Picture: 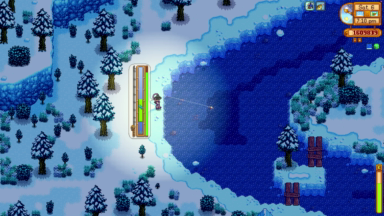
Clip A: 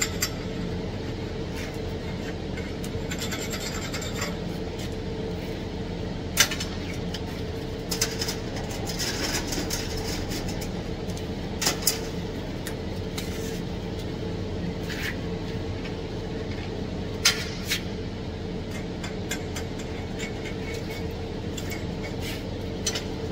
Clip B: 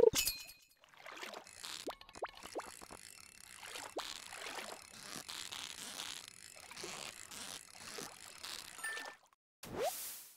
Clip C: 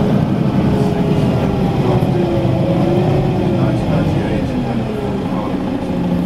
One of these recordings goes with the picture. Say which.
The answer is B